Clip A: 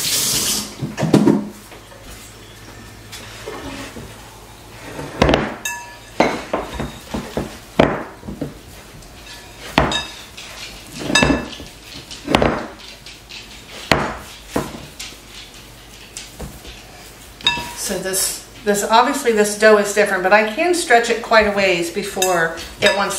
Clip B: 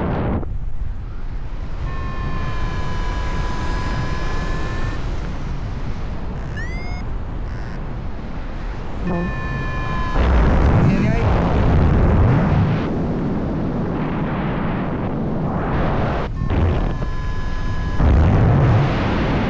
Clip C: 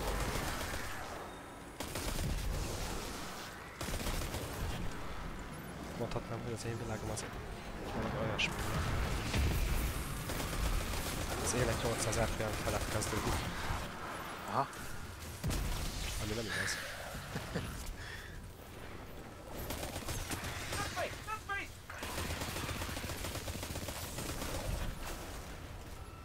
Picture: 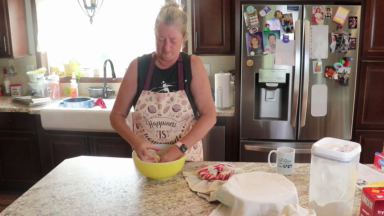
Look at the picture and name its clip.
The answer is A